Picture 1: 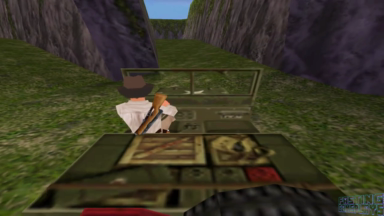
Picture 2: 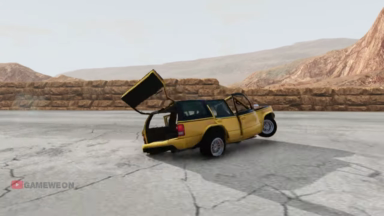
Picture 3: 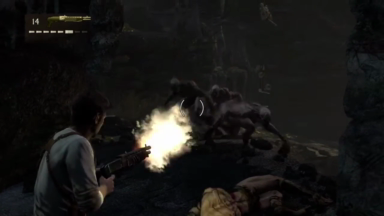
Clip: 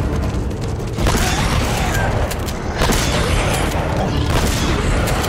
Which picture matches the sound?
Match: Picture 3